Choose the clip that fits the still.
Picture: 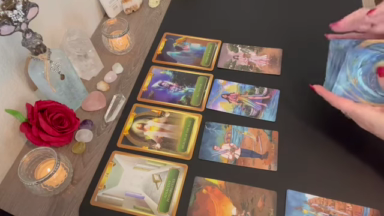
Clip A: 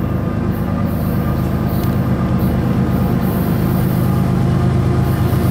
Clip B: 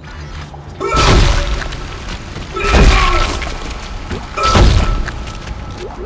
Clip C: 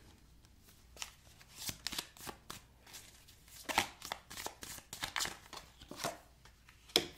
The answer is C